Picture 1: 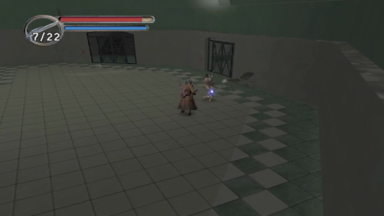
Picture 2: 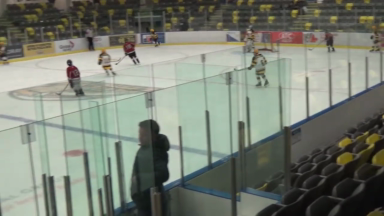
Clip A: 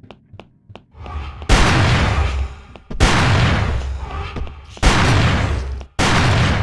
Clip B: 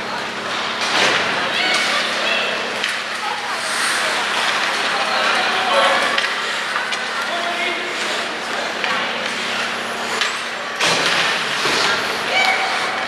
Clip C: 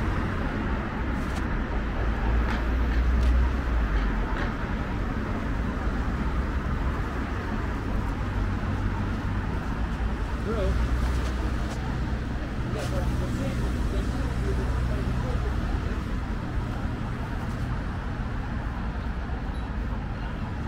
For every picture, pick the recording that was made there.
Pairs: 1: A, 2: B